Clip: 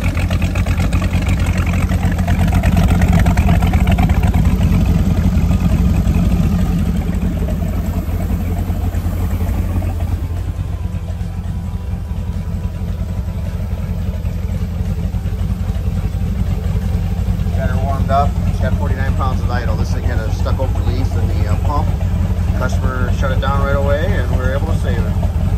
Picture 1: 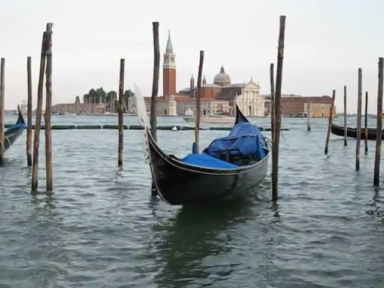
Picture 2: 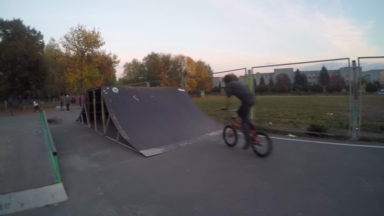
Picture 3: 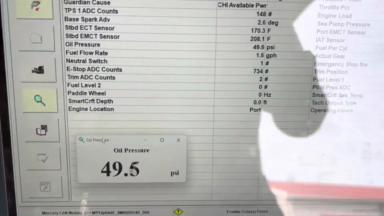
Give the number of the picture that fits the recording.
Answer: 3